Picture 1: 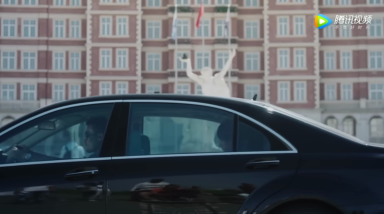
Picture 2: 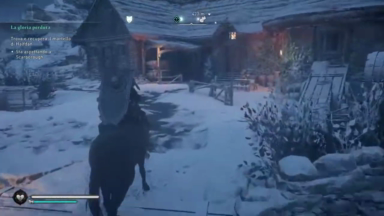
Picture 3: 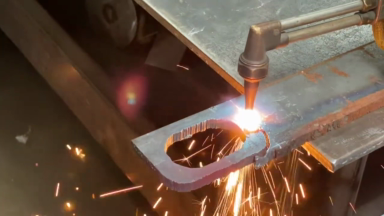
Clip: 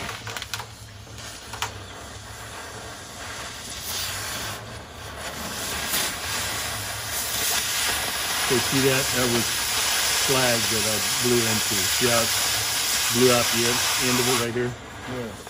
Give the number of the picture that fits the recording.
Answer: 3